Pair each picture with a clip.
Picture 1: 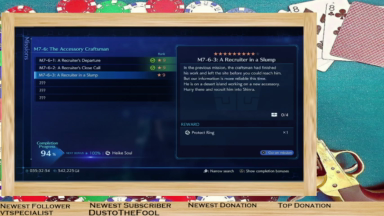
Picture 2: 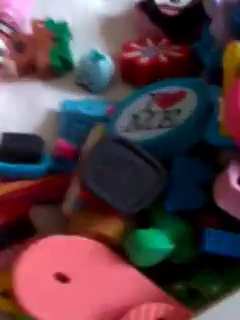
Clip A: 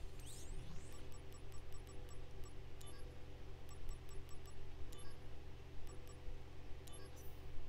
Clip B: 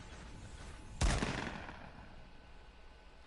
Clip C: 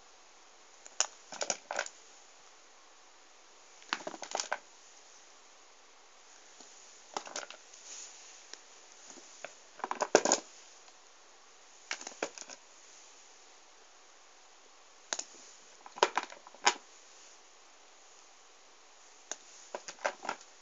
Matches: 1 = A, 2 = C